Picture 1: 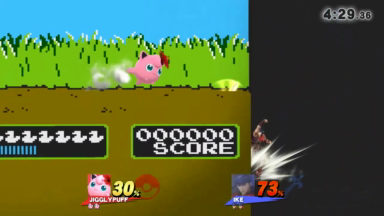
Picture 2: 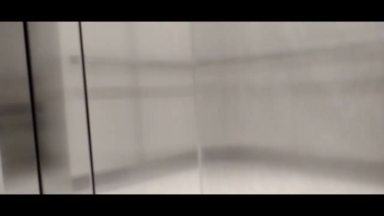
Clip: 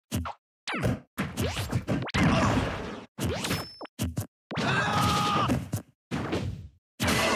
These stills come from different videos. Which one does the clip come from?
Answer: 1